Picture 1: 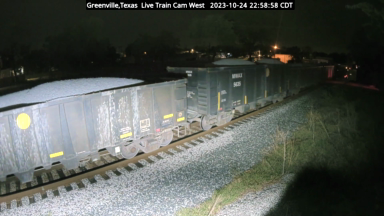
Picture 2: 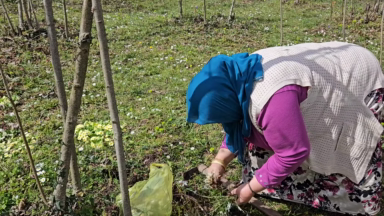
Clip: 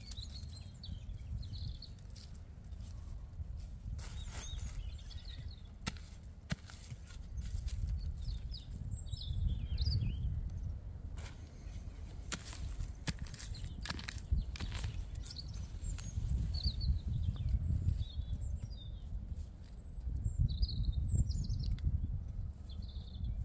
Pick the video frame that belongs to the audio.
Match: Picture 2